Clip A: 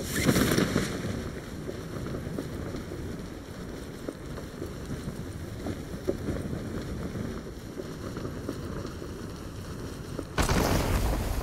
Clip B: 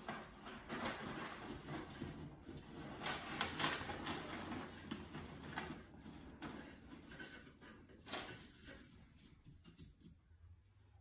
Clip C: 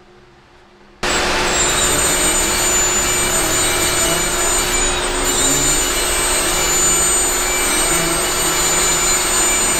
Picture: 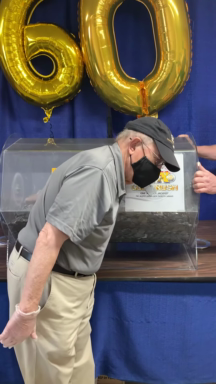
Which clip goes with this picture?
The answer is B